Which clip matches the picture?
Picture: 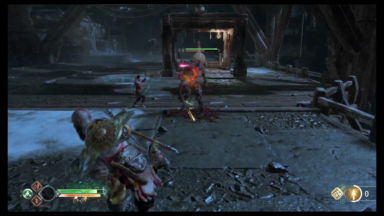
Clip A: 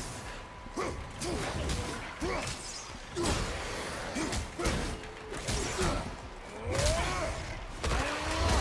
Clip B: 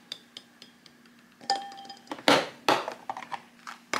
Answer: A